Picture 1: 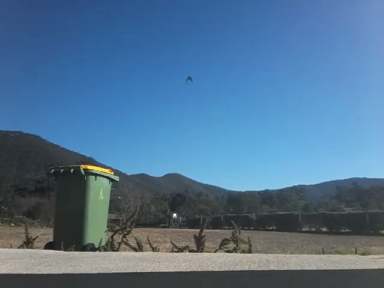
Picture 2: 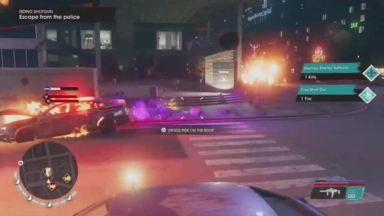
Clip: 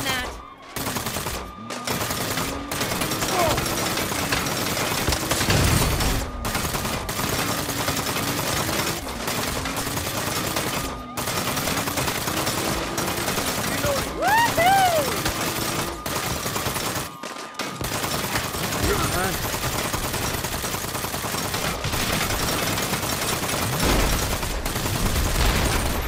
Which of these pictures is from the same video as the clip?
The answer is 2